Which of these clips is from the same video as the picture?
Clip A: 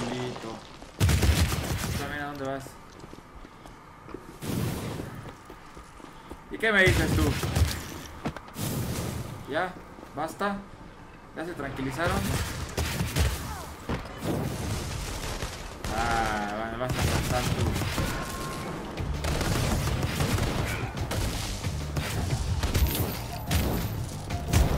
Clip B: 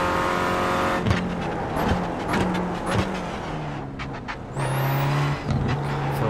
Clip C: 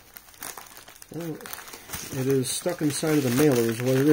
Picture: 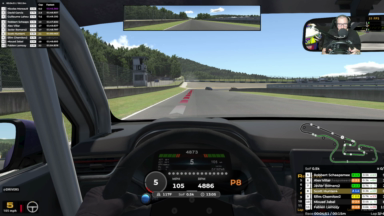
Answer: B